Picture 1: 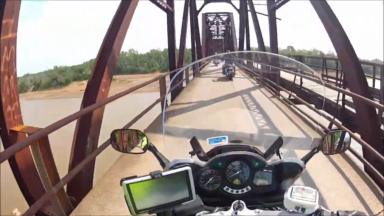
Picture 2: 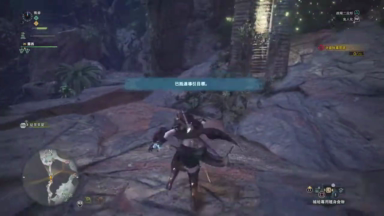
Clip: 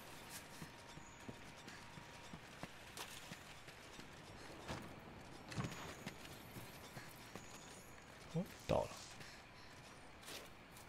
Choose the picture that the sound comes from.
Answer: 2